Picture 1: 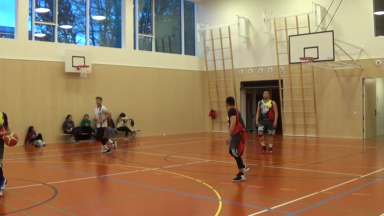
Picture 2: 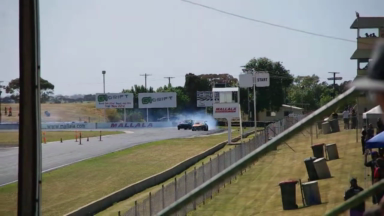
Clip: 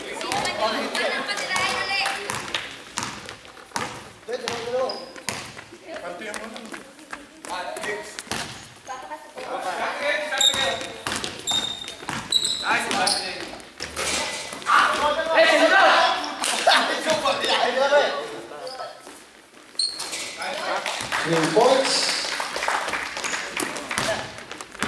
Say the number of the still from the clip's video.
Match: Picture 1